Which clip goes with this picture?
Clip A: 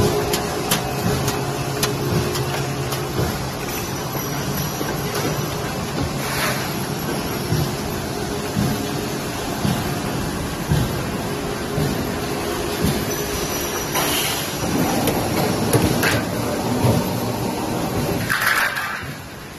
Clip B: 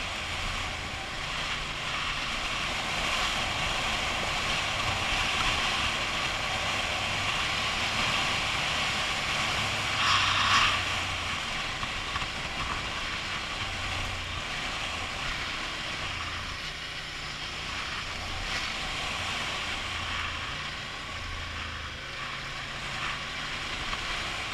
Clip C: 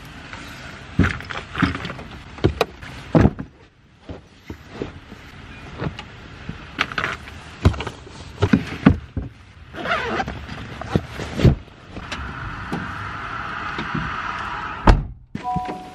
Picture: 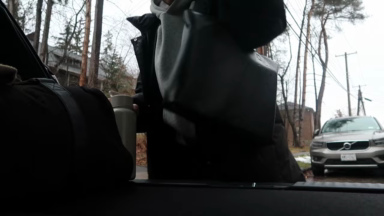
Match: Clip C